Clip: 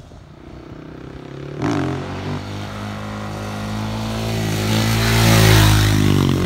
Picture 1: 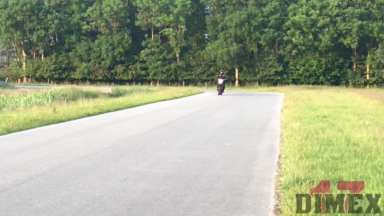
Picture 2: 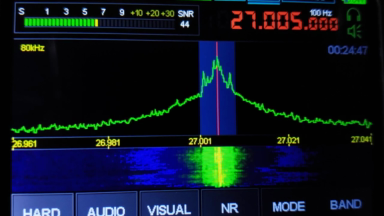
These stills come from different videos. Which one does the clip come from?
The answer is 1